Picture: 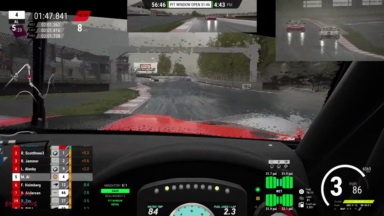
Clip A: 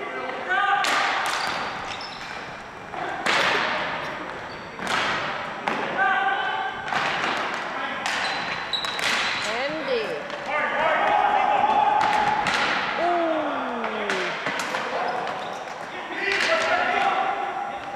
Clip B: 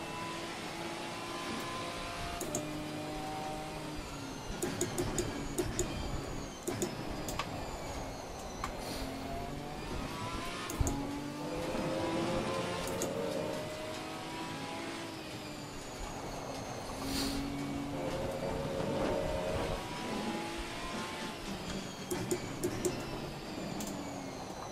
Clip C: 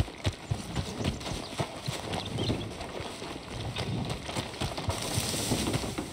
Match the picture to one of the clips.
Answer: B